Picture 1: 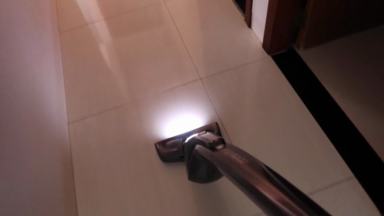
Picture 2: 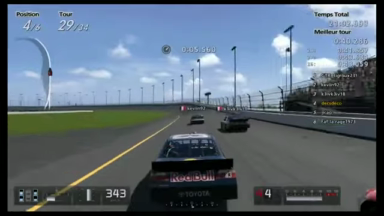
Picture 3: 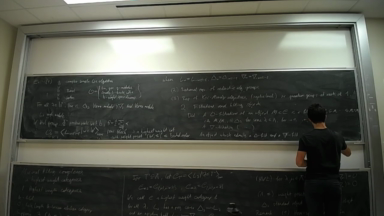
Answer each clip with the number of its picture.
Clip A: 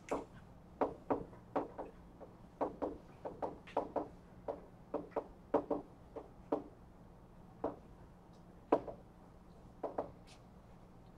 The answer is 3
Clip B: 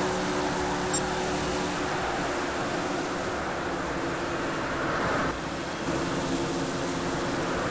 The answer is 2